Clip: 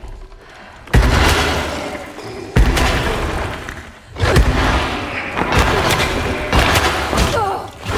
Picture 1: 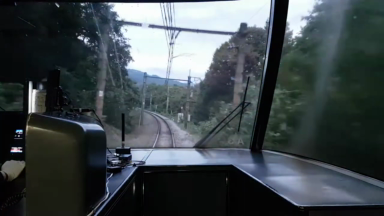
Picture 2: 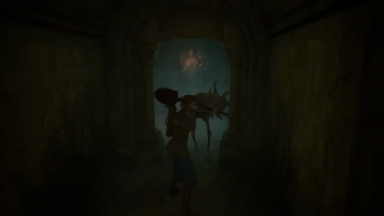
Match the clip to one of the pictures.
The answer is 2